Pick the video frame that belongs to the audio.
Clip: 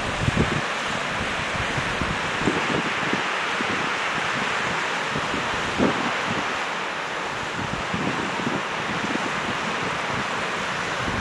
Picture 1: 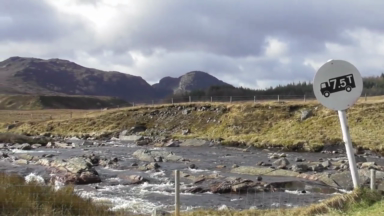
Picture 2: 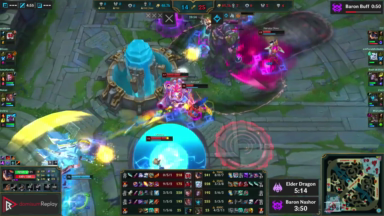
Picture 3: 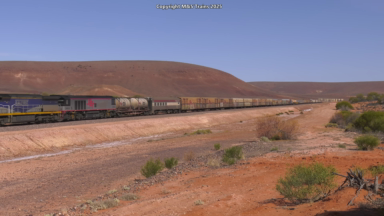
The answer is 1